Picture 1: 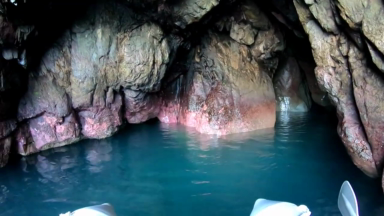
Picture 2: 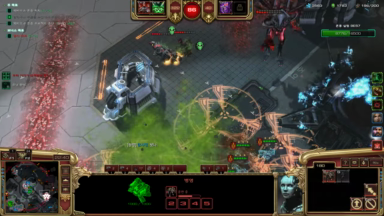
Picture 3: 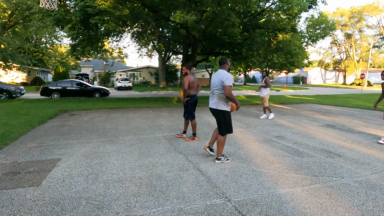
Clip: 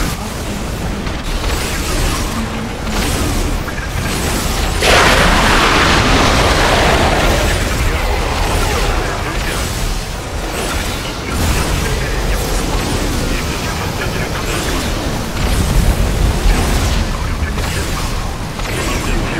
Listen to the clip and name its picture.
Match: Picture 2